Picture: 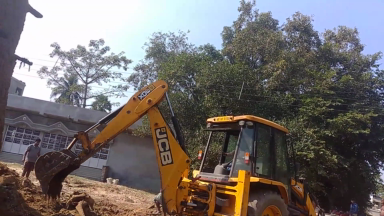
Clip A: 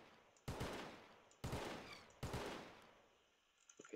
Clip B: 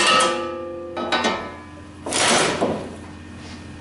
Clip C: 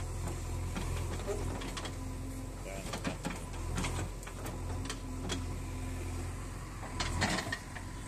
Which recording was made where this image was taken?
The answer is C